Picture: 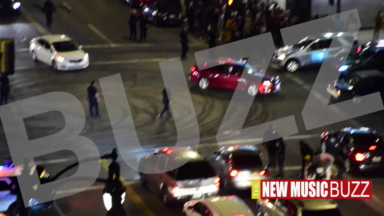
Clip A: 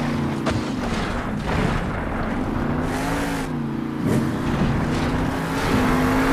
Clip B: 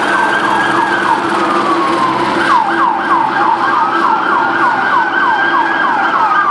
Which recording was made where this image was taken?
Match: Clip B